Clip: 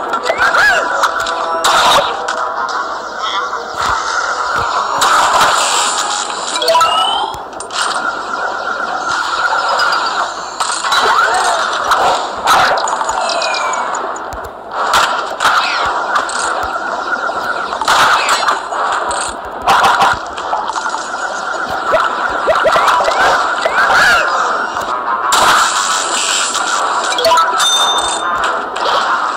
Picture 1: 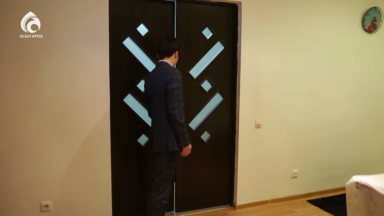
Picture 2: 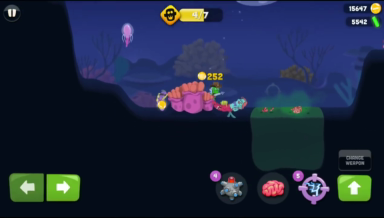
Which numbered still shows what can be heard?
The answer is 2